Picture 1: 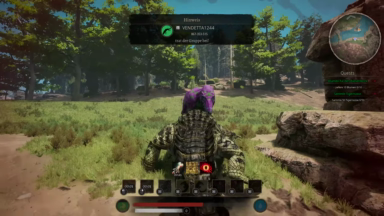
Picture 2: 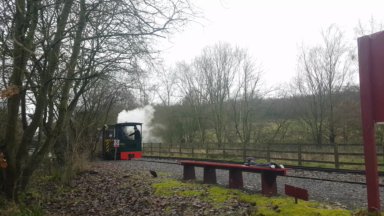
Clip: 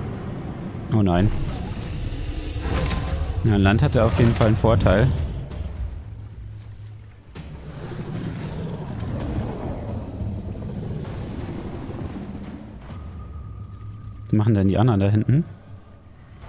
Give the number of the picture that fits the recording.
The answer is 1